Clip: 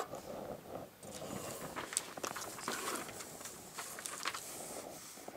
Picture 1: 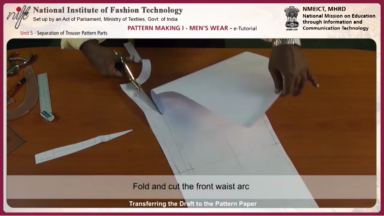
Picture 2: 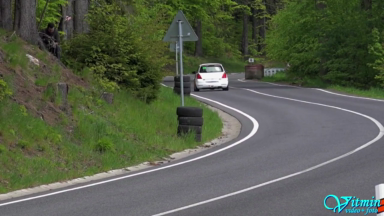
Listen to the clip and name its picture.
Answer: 1